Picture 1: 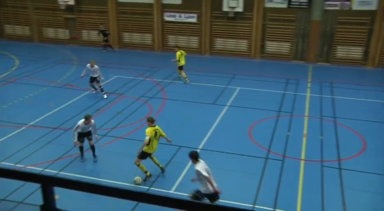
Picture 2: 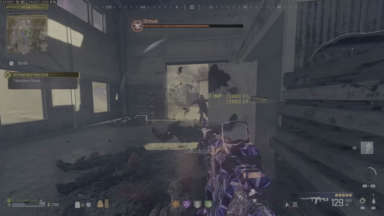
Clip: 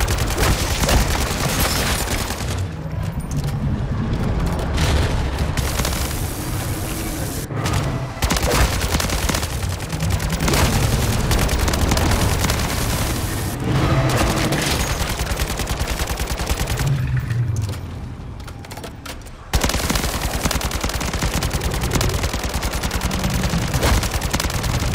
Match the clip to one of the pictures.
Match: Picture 2